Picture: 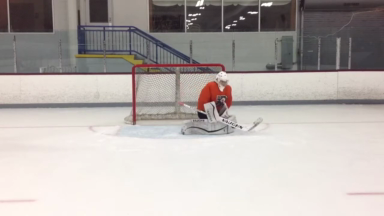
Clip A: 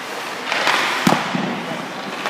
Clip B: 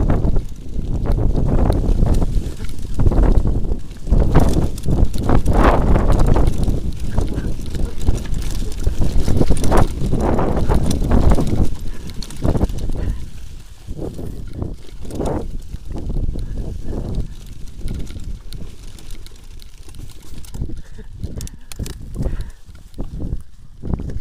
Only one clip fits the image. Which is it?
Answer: A